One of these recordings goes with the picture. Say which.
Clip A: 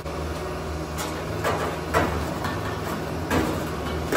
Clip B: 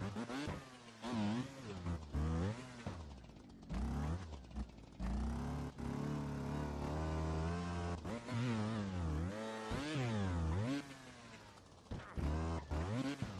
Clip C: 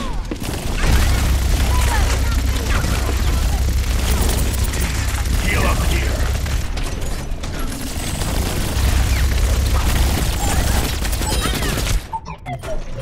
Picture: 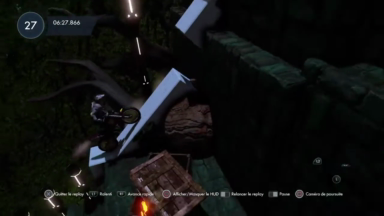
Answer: B